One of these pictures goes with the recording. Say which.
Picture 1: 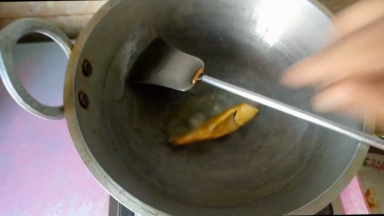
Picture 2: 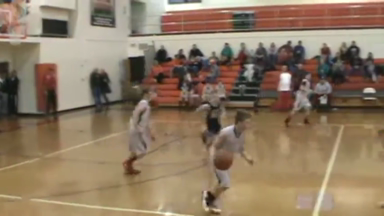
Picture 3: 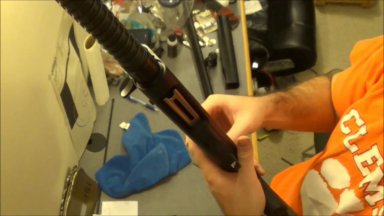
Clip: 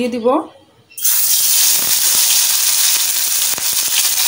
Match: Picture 1